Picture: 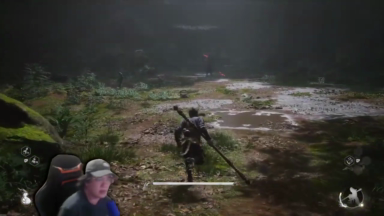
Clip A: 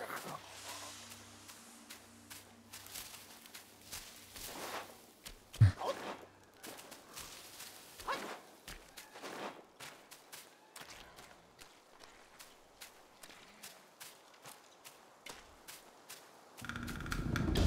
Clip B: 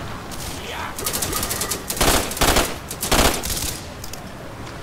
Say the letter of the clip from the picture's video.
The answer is A